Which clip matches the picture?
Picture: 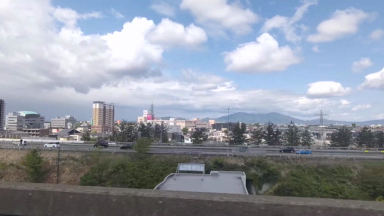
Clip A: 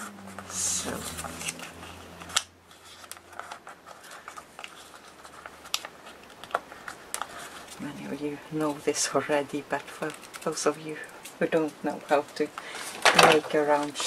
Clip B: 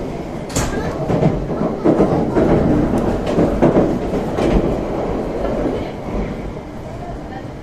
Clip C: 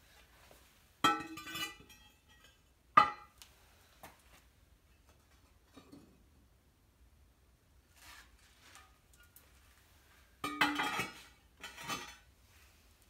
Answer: B